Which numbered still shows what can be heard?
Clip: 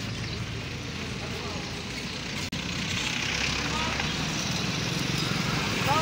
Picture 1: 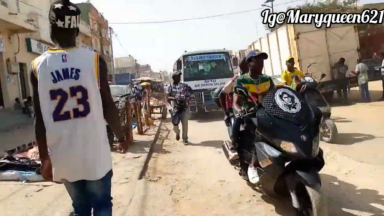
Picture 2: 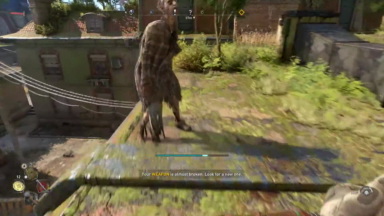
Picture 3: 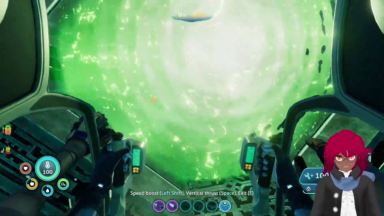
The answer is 1